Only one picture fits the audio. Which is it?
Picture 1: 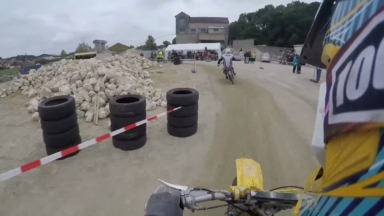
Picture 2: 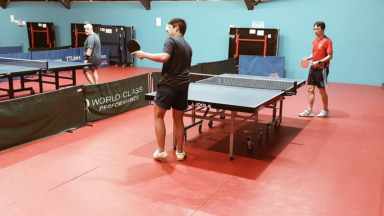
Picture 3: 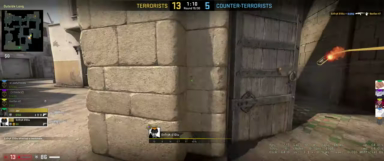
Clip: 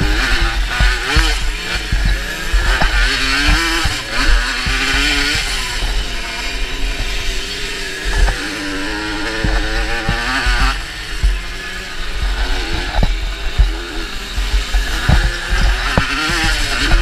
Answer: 1